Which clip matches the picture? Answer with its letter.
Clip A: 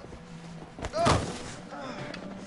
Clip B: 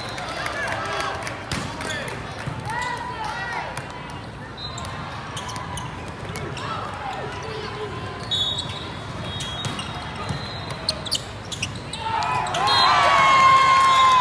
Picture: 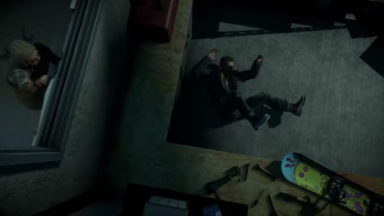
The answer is A